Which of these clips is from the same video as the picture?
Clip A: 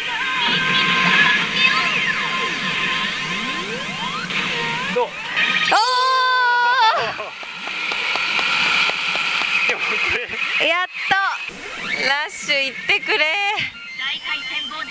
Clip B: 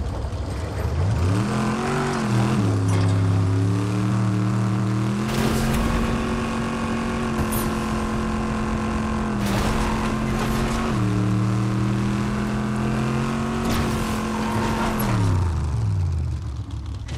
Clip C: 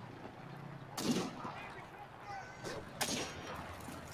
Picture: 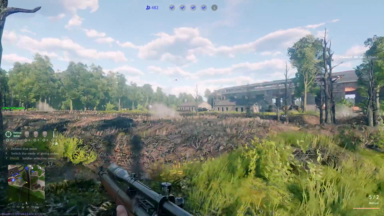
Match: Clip C